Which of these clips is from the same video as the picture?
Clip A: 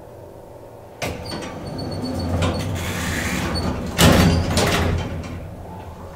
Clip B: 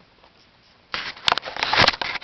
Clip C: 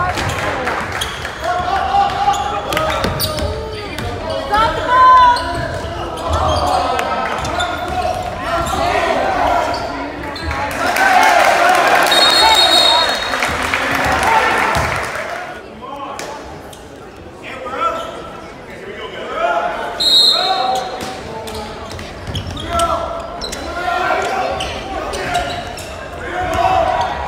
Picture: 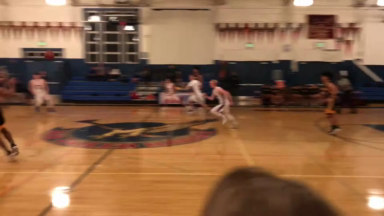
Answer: C